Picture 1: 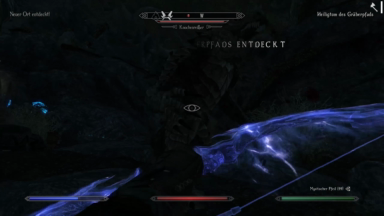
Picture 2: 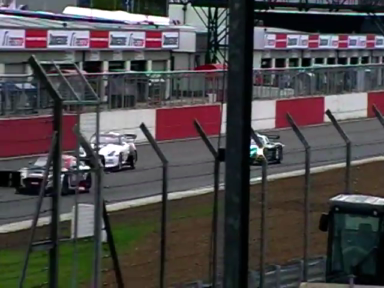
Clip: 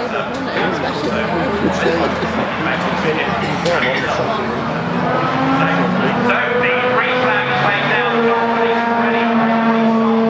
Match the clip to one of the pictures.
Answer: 2